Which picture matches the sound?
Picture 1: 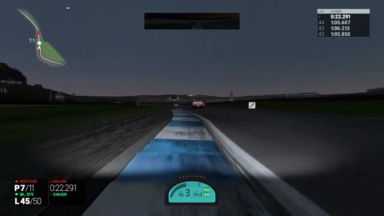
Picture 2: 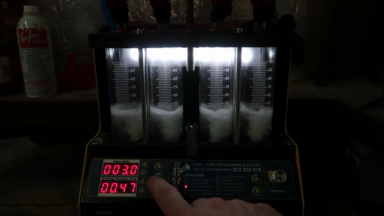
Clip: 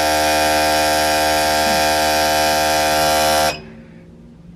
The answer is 2